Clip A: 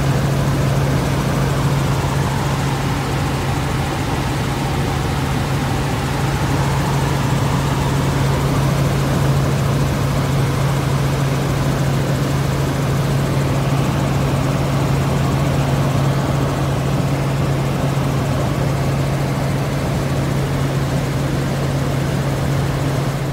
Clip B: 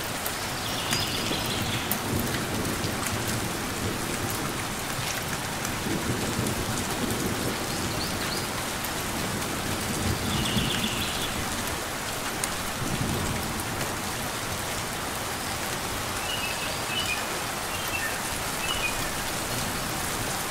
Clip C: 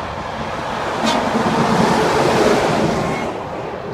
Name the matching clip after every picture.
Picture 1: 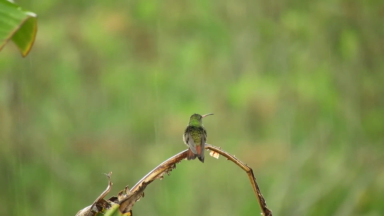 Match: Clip B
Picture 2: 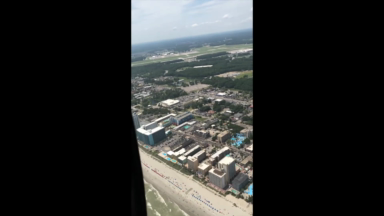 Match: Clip A